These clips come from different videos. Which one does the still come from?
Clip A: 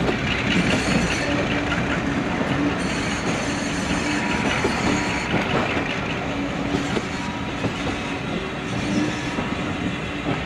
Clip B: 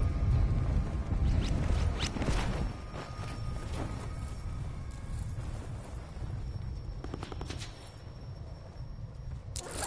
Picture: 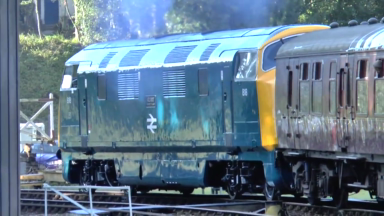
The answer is A